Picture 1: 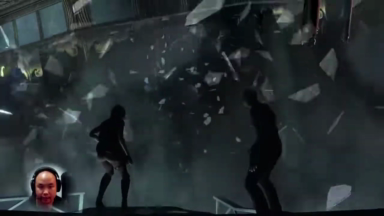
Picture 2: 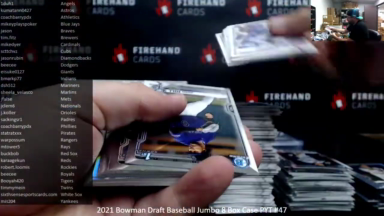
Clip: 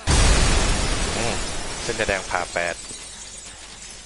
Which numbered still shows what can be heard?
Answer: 1